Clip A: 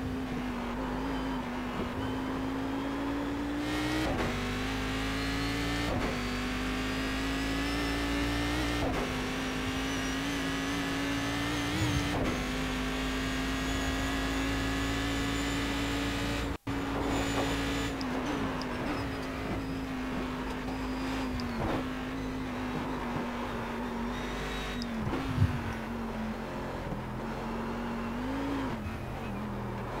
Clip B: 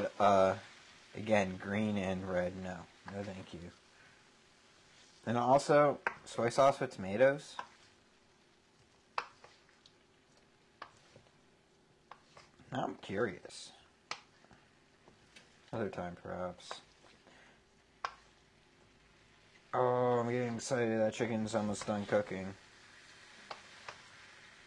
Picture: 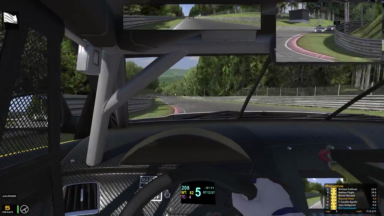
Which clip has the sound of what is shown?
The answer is A